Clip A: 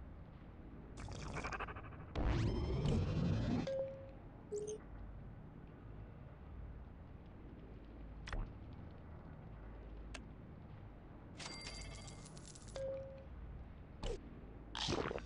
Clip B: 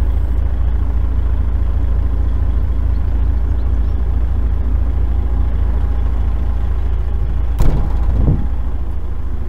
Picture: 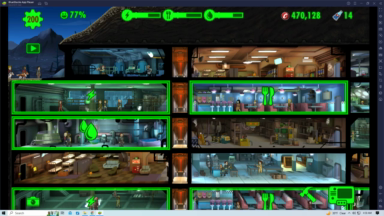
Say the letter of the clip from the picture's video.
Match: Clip A